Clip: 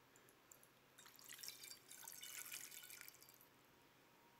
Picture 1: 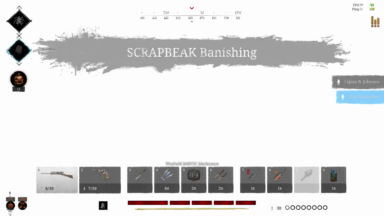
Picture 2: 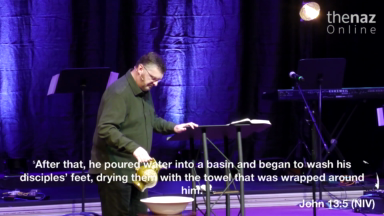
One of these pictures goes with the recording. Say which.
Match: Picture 2